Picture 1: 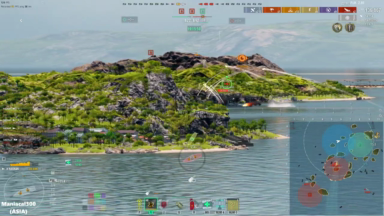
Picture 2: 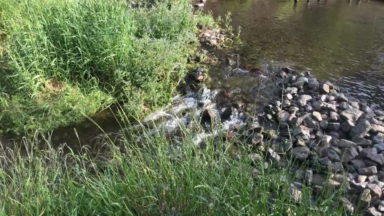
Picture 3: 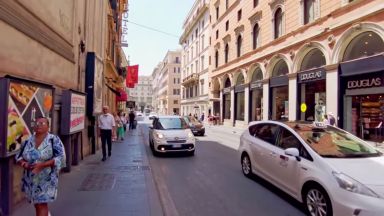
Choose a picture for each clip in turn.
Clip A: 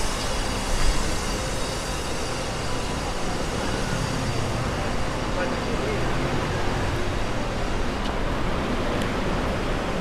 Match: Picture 3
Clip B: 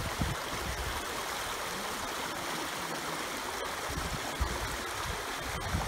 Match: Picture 2